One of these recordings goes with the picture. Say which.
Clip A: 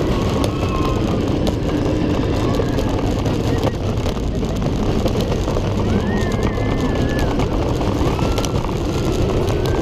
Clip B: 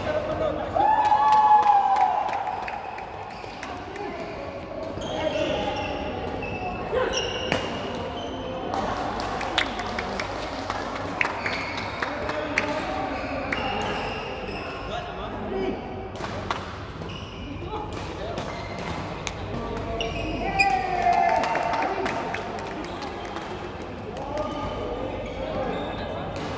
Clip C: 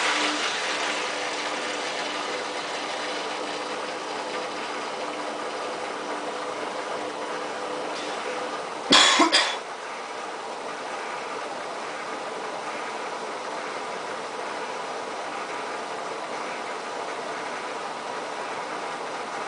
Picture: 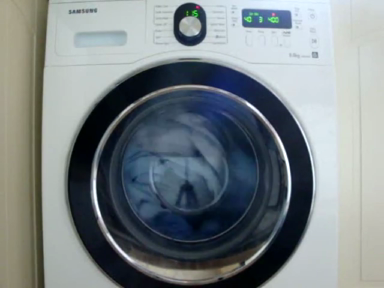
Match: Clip C